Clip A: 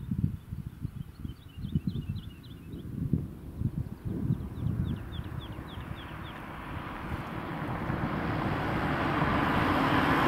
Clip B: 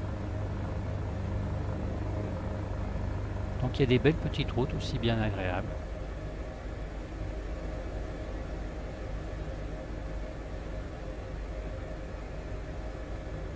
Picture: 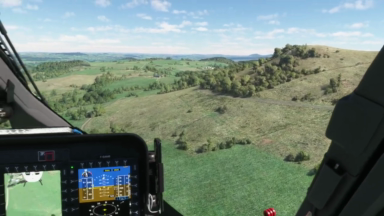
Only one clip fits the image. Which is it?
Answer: B